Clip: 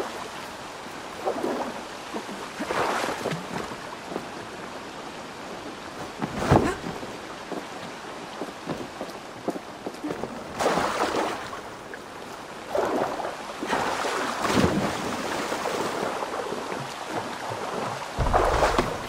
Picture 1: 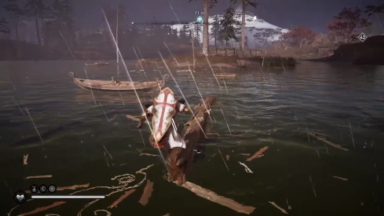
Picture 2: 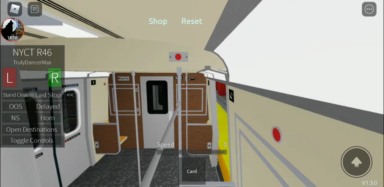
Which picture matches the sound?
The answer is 1